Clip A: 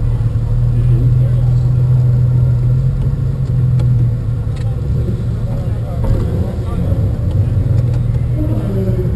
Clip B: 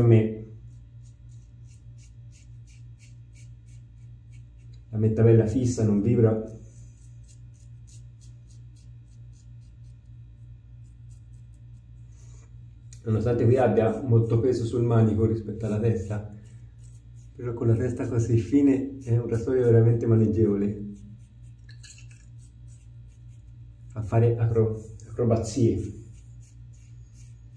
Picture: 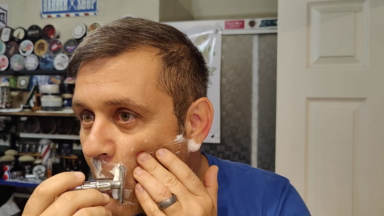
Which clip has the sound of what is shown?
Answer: B